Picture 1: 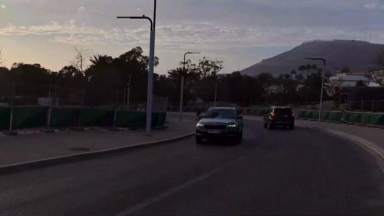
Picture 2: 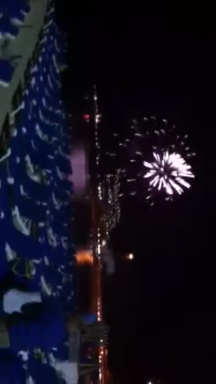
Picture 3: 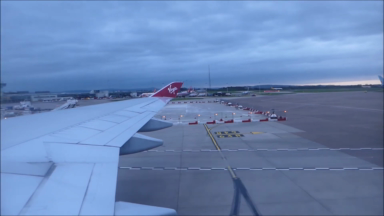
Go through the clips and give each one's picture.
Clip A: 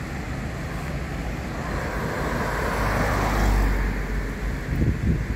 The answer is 1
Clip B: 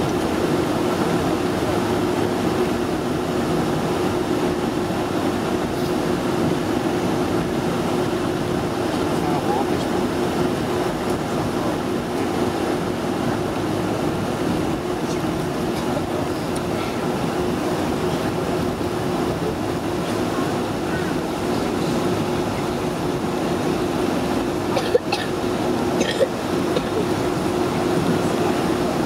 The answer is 3